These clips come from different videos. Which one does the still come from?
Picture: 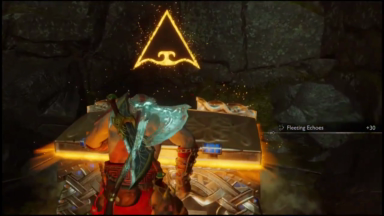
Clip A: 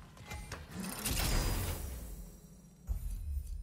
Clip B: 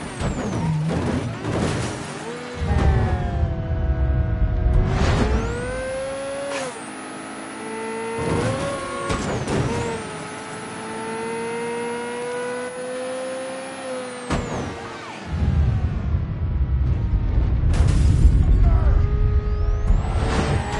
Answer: A